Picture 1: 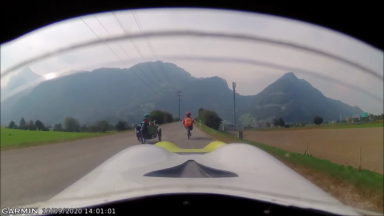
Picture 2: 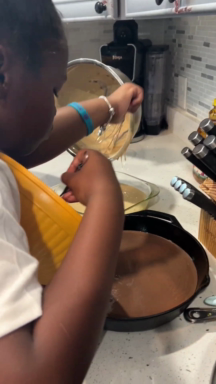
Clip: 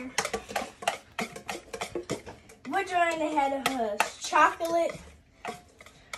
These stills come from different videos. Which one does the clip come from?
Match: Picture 2